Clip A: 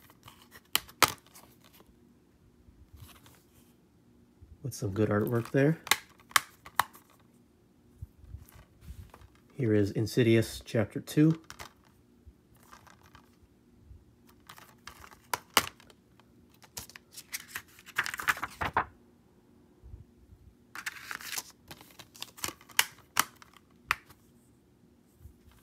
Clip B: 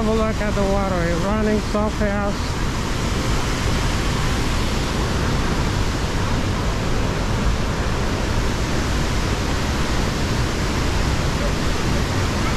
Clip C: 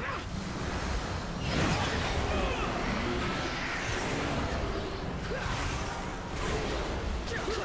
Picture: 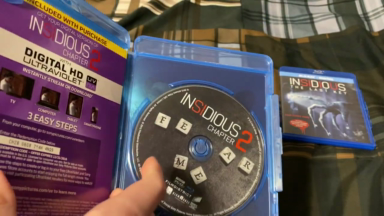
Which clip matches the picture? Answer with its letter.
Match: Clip A